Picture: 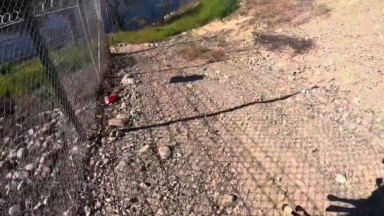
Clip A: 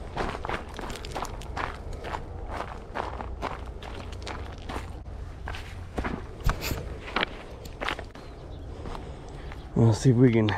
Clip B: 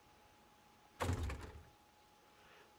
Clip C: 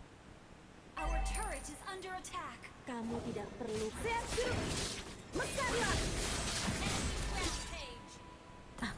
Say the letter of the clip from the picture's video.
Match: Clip A